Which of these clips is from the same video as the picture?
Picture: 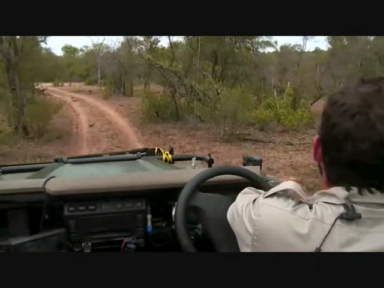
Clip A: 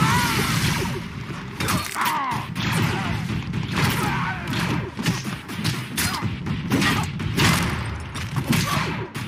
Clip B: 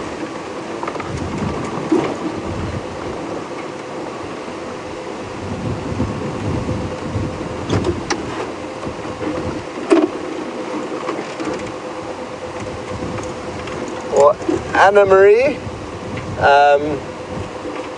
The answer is B